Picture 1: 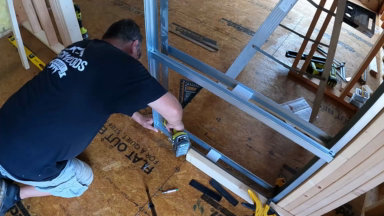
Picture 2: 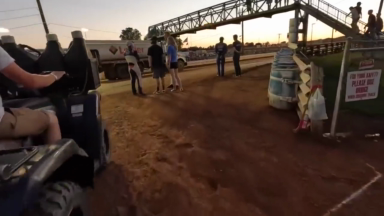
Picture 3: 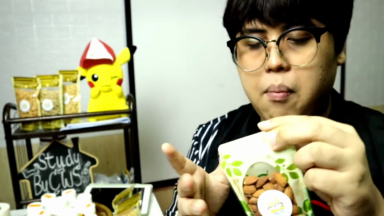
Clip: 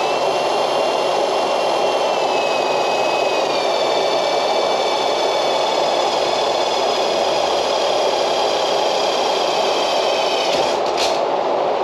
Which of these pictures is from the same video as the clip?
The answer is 1